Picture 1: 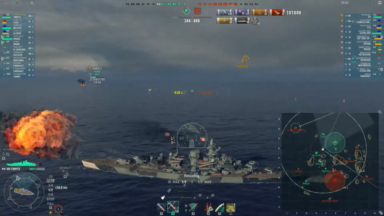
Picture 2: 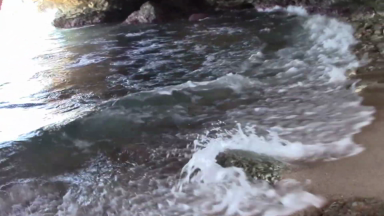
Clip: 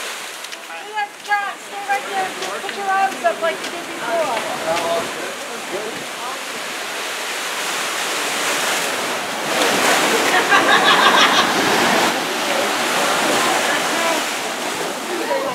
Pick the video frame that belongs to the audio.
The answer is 2